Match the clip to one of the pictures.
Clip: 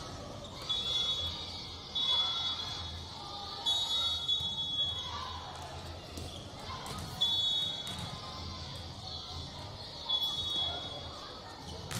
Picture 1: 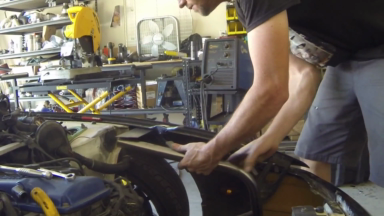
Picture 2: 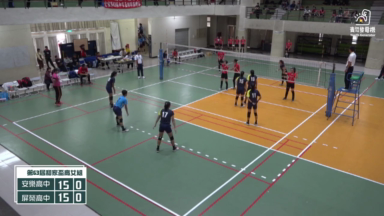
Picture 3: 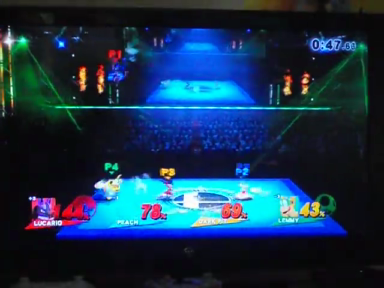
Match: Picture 2